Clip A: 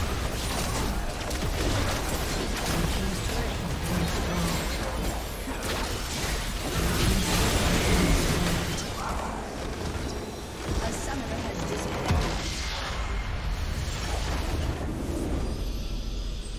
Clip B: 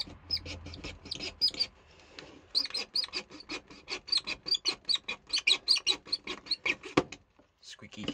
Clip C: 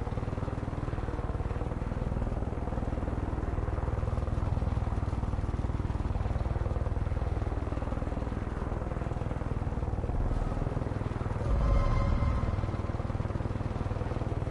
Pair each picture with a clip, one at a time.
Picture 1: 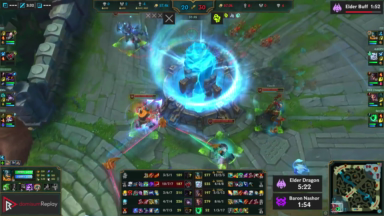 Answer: A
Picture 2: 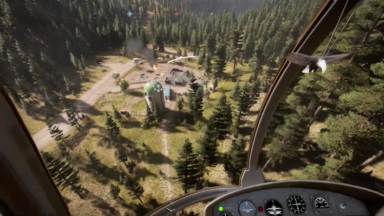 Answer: C